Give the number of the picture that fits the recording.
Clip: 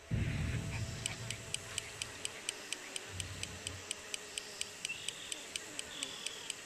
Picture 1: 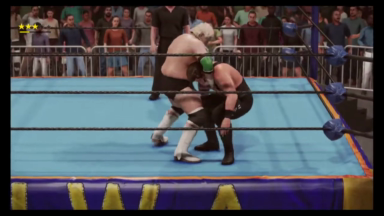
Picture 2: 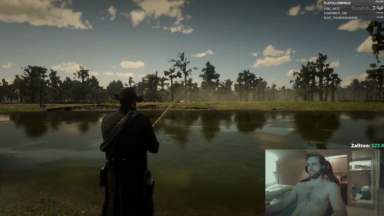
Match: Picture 2